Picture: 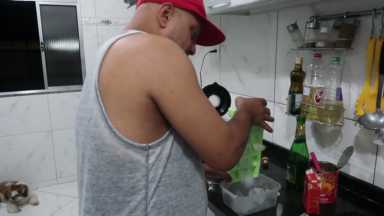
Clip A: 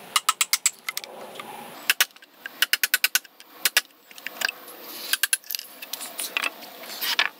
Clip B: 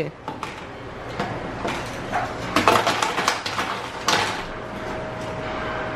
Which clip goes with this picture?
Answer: B